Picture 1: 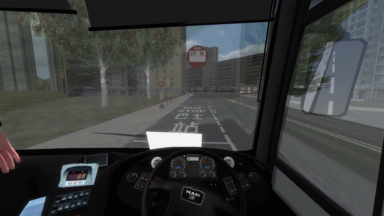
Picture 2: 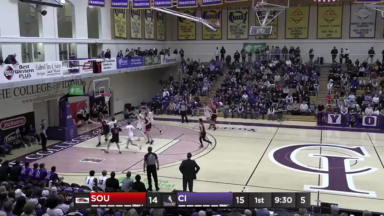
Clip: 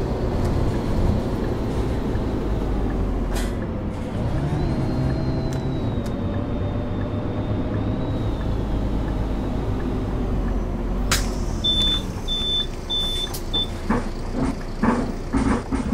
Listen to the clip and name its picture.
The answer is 1